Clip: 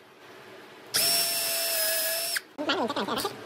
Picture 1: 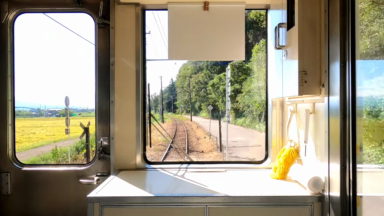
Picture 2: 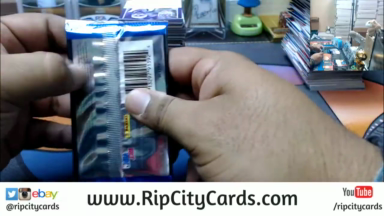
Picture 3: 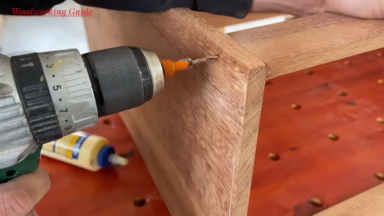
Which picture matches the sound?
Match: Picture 3